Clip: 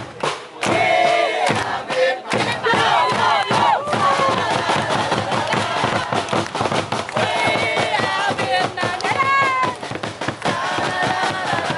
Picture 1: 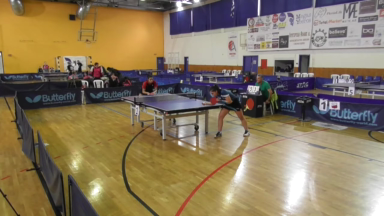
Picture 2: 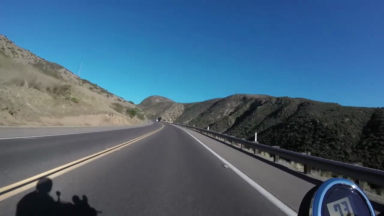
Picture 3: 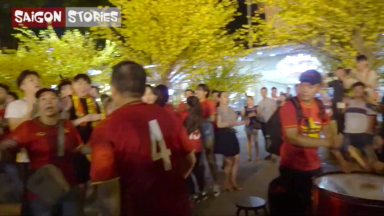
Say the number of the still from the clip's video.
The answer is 3